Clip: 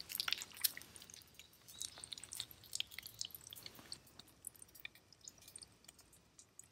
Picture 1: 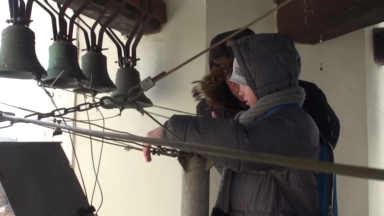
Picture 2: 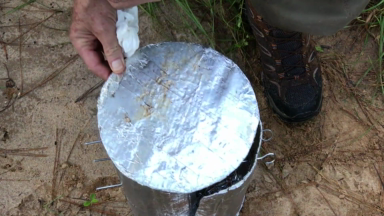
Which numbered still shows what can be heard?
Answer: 2